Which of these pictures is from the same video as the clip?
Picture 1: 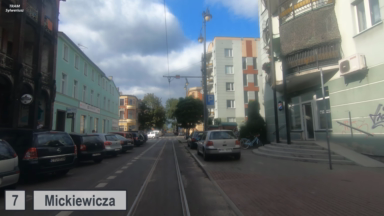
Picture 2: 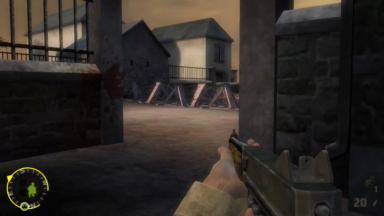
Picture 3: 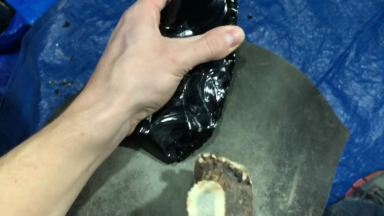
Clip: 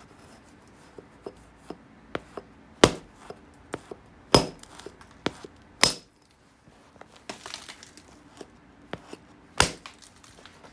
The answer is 3